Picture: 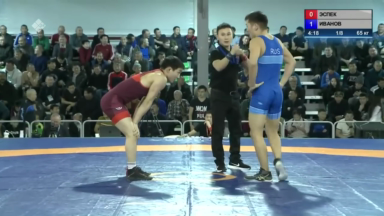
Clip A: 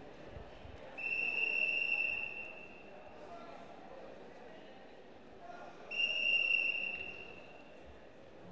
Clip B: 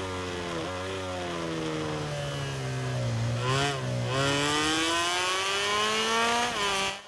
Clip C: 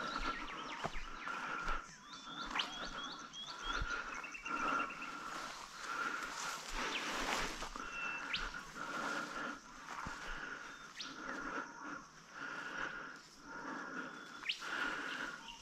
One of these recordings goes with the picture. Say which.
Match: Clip A